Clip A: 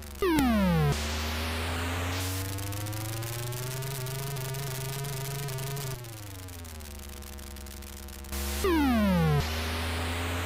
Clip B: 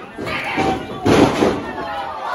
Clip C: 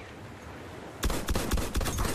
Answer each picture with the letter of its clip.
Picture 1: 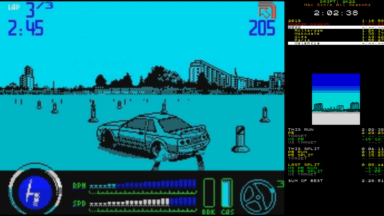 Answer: A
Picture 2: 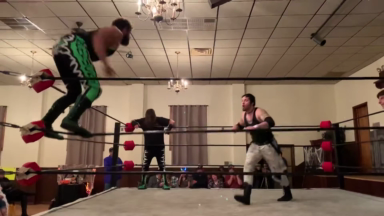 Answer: B